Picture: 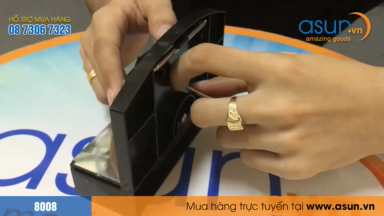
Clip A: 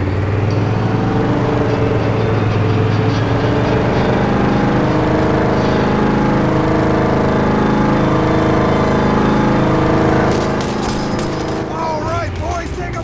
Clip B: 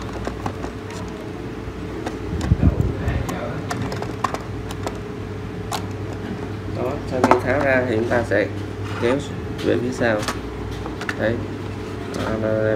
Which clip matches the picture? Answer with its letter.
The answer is B